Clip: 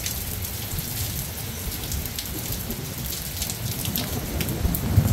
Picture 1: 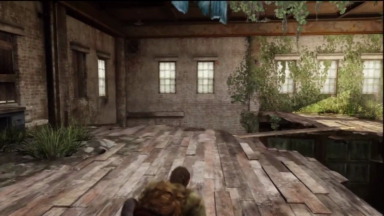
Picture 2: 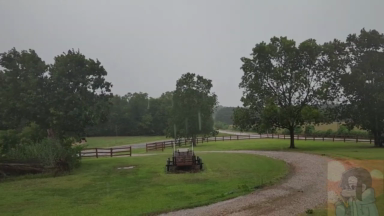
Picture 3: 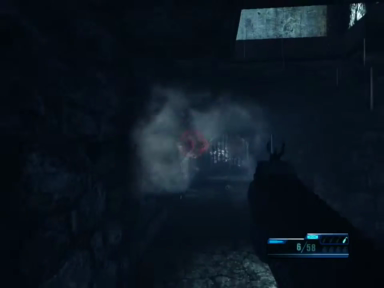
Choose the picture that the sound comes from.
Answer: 2